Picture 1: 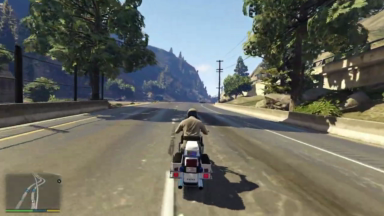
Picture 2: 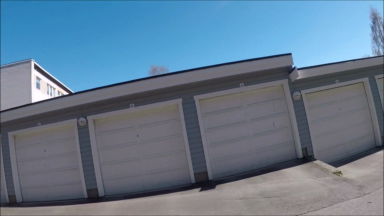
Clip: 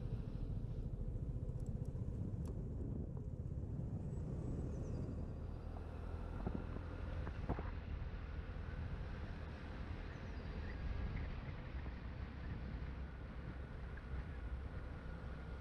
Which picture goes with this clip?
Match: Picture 2